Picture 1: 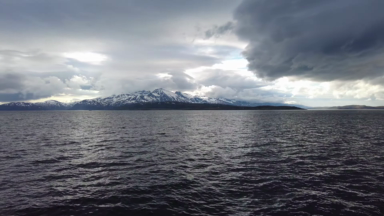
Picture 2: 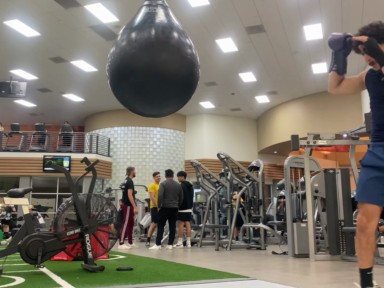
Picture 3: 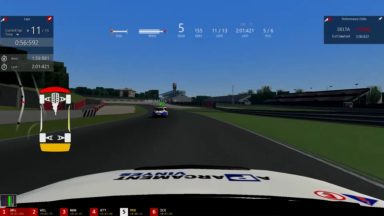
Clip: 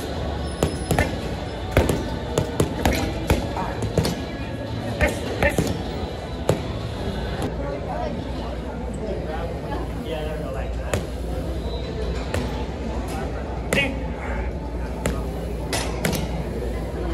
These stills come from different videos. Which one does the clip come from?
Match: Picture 2